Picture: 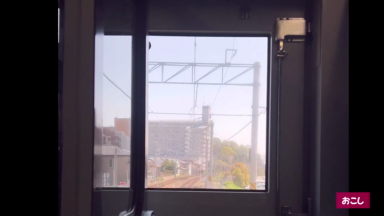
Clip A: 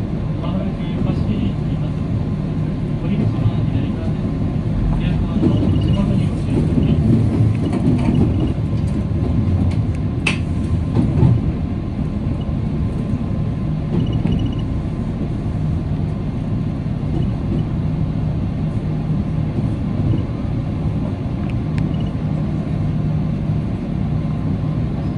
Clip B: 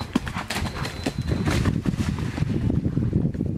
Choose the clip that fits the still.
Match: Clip A